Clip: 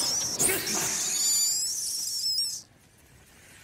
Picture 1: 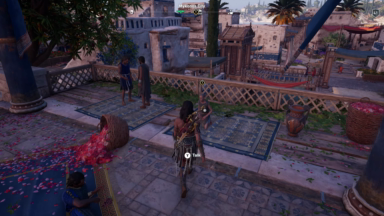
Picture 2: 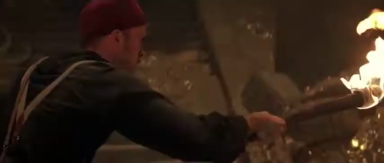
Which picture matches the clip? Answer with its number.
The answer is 2